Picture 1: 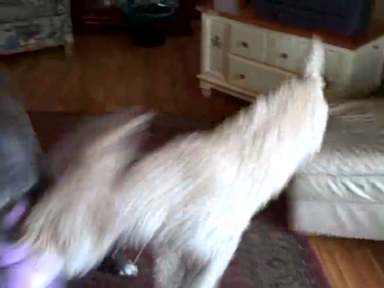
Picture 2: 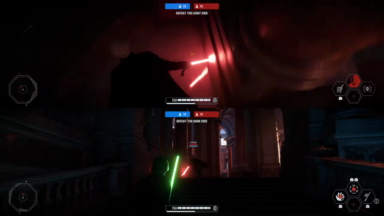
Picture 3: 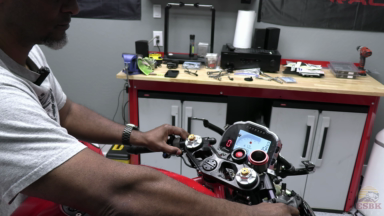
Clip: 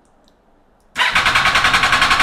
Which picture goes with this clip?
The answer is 3